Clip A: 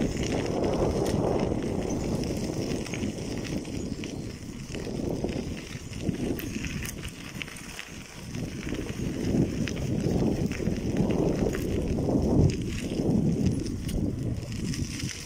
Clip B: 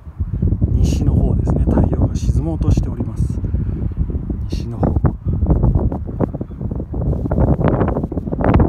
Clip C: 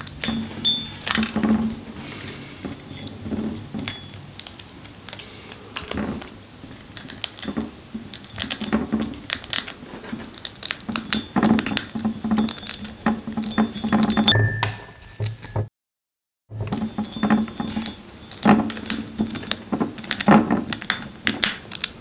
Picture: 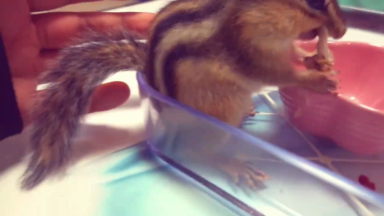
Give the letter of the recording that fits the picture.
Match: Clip C